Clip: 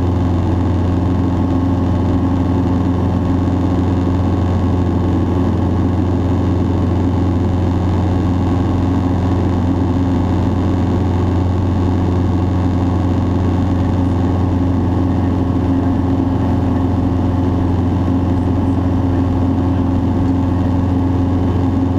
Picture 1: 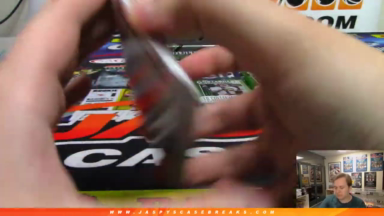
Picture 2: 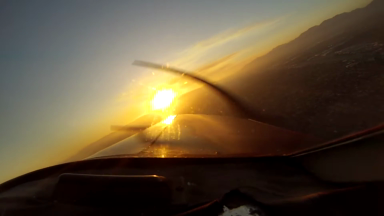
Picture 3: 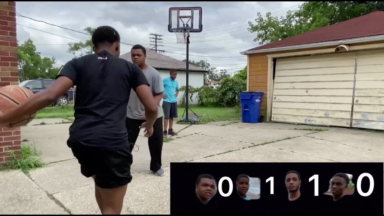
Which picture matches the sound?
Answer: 2